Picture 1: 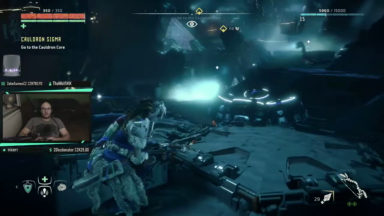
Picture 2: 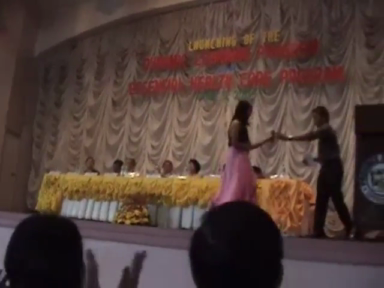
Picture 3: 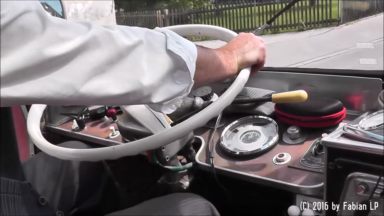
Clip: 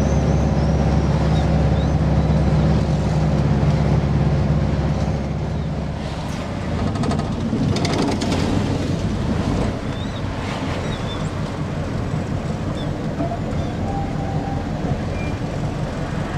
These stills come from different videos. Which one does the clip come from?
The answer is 3